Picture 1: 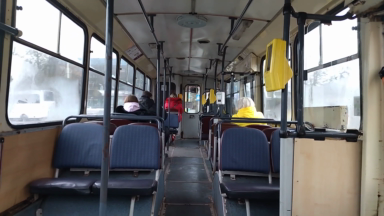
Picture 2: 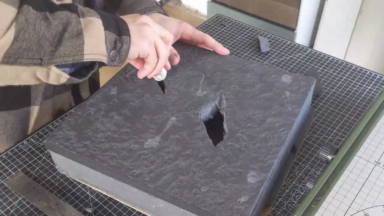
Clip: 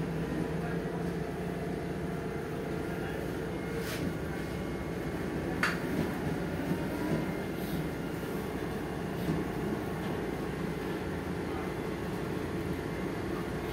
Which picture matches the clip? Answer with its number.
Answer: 1